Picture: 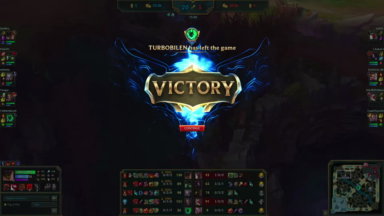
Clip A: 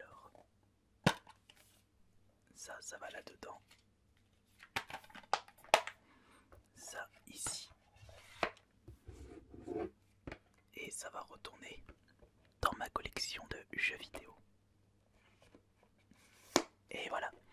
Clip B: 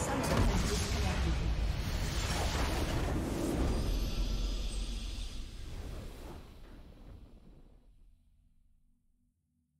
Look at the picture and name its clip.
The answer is B